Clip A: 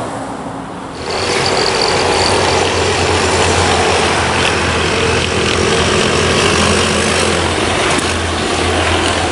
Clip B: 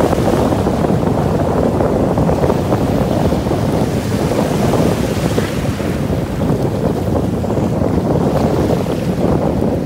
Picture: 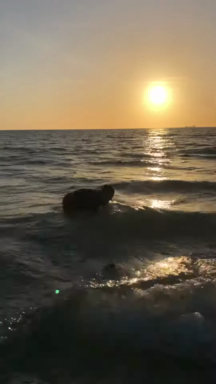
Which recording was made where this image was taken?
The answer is B